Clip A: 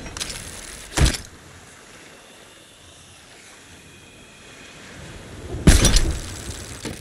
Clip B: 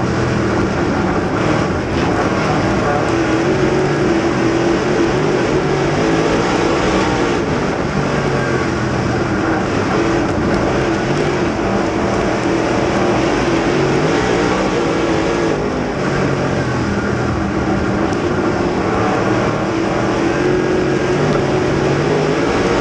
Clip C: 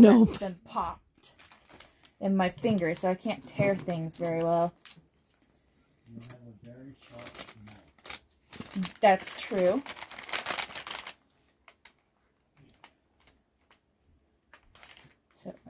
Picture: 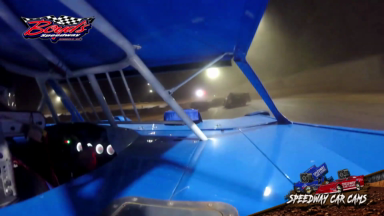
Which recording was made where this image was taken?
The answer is B